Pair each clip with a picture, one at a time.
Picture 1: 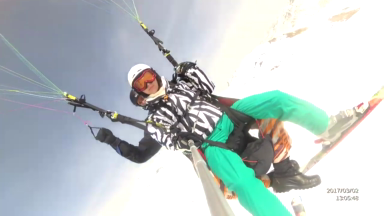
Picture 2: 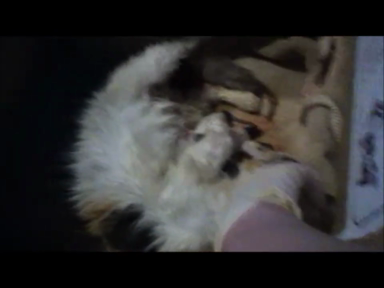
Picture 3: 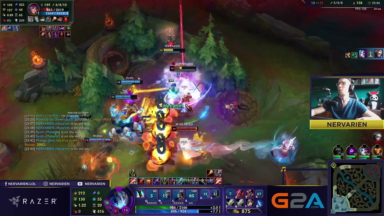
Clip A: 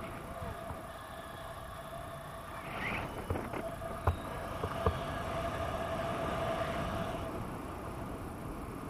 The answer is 1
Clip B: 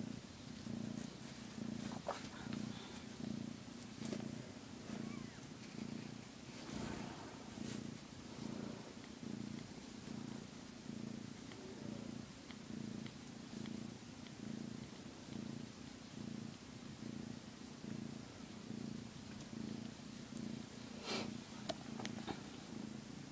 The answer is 2